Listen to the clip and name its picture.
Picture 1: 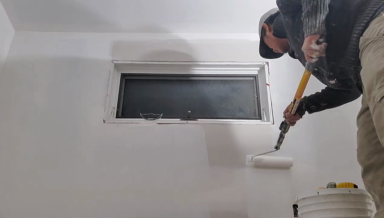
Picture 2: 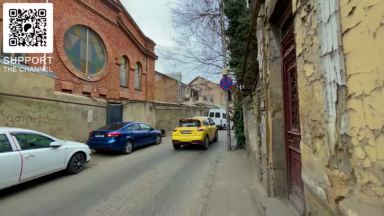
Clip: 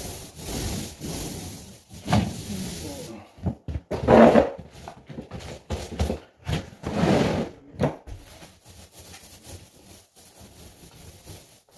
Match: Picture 1